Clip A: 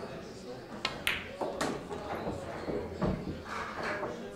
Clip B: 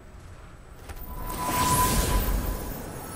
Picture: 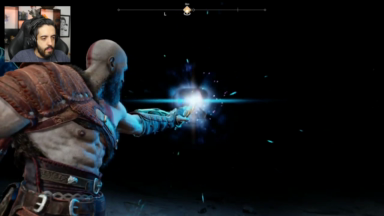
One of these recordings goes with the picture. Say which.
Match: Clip B